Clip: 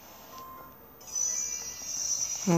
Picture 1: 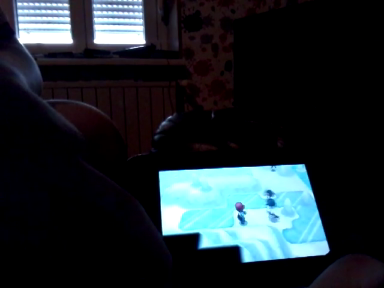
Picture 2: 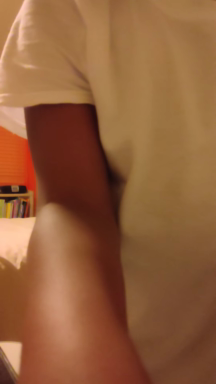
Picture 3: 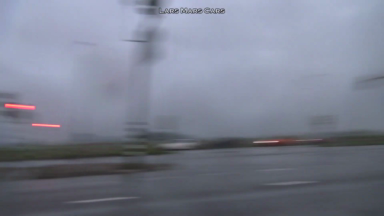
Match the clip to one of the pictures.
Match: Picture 1